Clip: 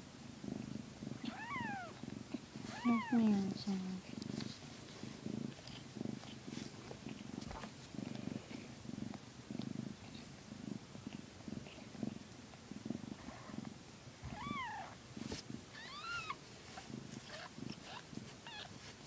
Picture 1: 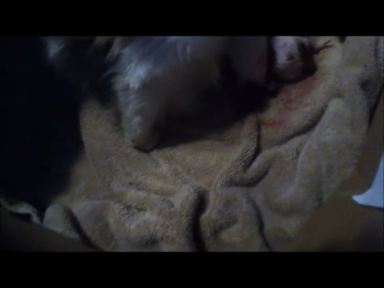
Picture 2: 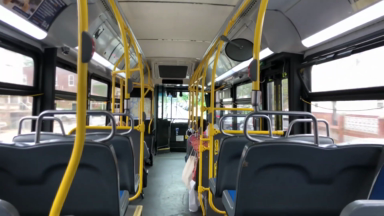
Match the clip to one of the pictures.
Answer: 1